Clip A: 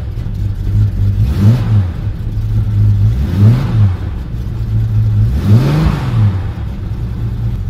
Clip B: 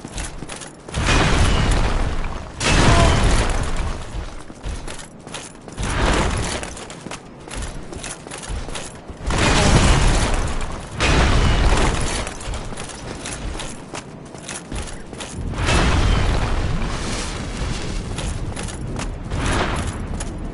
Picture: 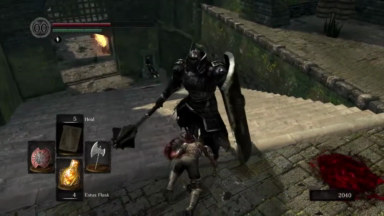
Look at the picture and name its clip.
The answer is B